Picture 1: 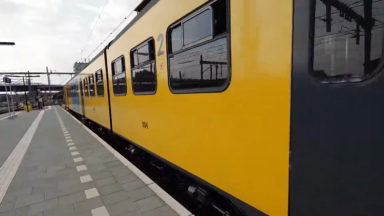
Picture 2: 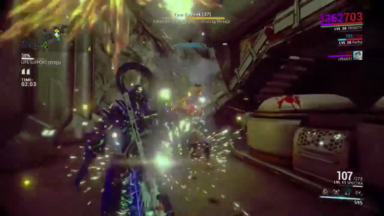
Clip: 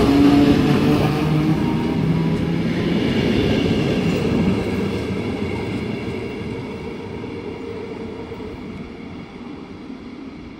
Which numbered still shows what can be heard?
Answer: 1